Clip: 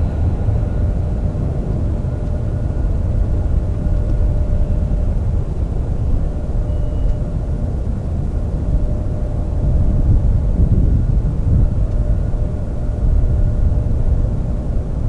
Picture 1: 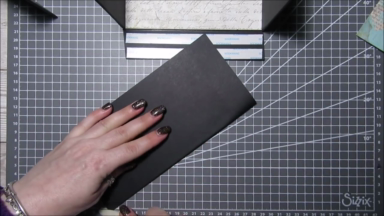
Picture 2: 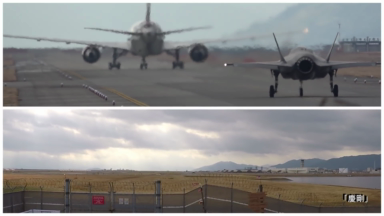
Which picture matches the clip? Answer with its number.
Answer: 2